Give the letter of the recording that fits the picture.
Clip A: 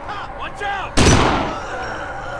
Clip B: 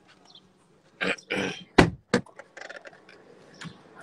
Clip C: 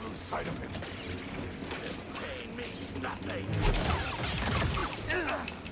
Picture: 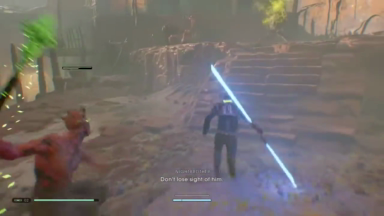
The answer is C